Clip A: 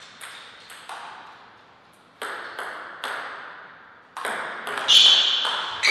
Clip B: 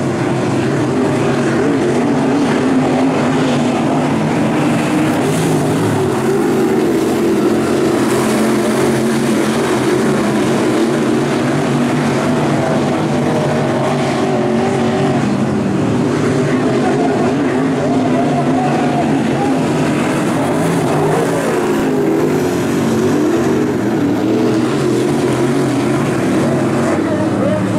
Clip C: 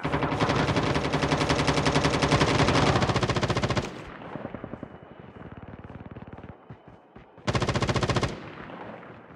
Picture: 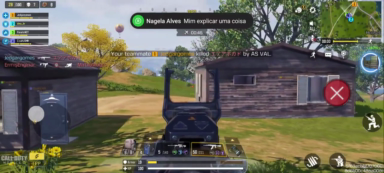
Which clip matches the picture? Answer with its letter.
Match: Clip C